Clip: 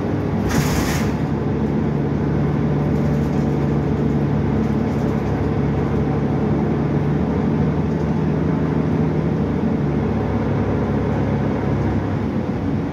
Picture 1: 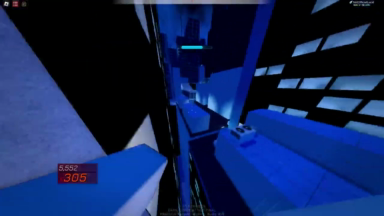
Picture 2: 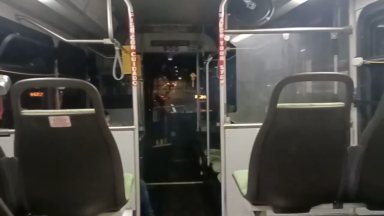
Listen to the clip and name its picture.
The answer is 2